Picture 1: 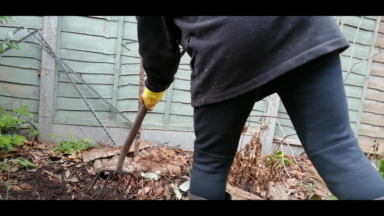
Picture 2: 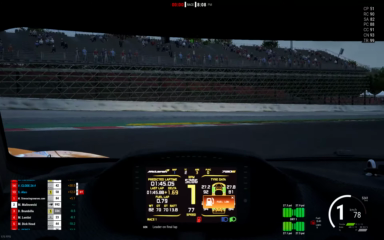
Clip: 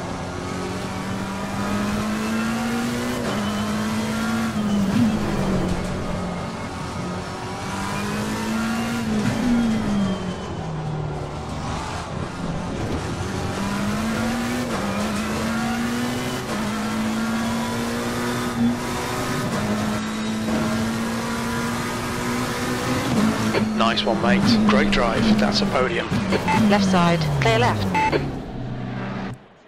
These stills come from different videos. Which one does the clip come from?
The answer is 2